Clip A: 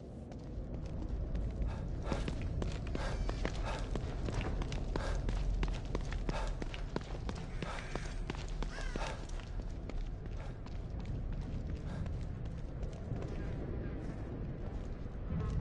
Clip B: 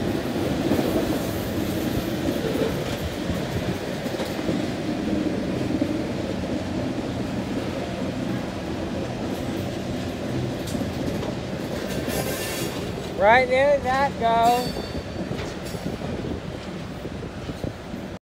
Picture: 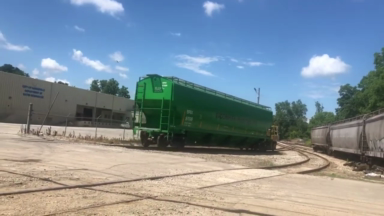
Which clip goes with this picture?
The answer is B